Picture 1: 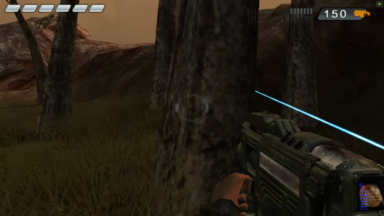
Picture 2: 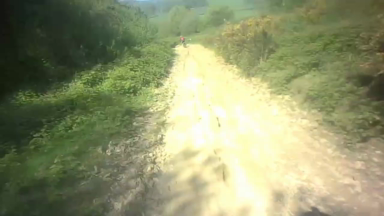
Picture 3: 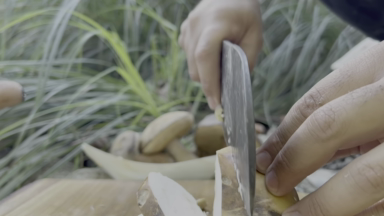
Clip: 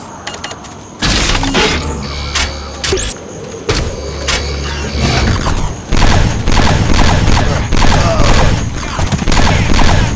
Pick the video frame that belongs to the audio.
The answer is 1